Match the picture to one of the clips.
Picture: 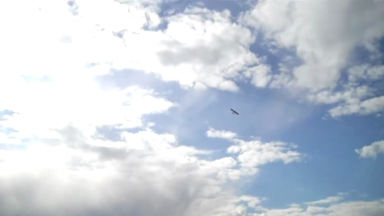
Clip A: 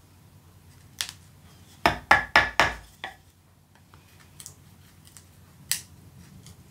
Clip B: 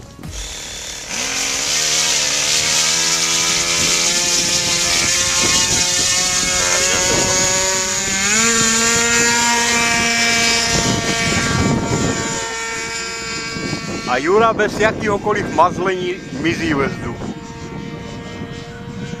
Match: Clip B